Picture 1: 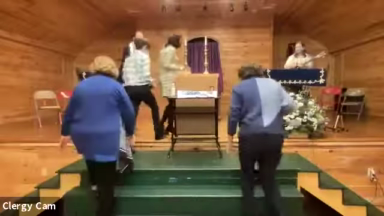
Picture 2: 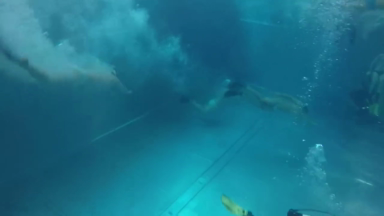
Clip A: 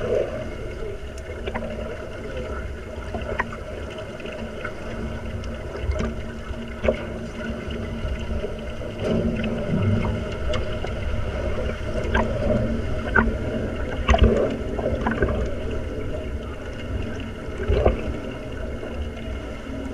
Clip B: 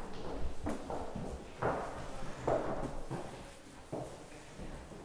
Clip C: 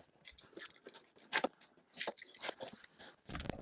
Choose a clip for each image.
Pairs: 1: B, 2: A